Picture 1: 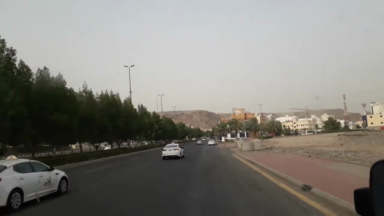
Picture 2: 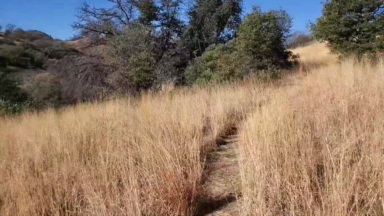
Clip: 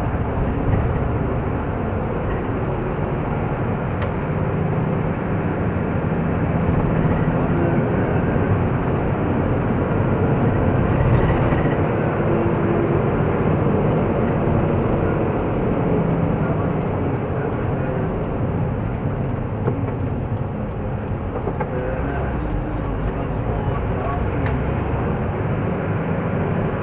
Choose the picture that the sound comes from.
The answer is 1